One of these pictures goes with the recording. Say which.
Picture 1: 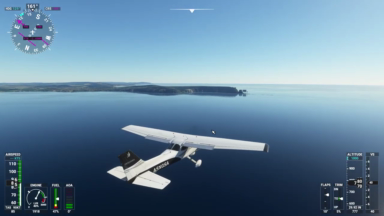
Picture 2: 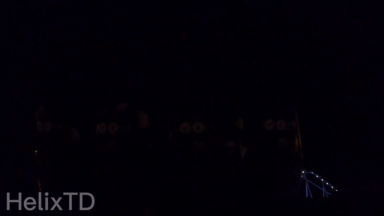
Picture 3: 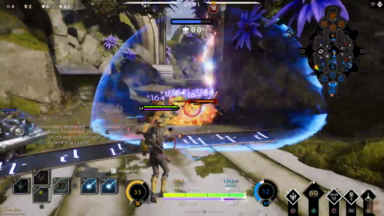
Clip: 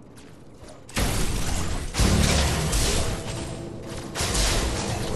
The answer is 3